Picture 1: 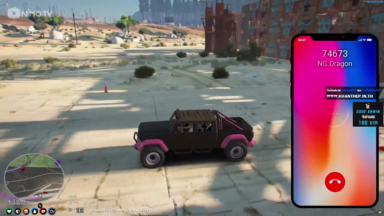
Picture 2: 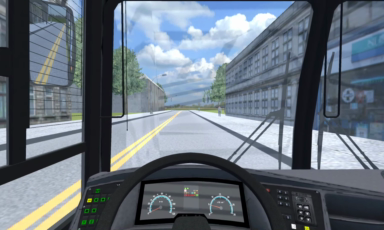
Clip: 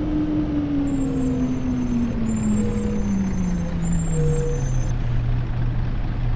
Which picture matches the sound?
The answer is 2